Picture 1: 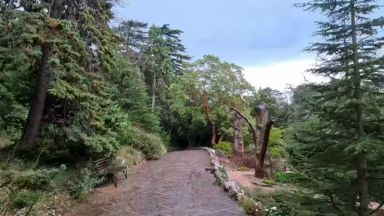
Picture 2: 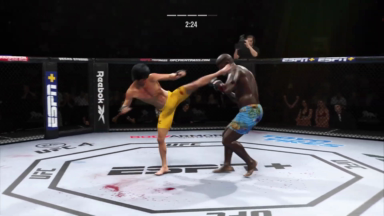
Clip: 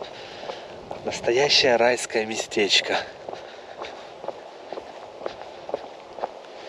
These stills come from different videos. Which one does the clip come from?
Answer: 1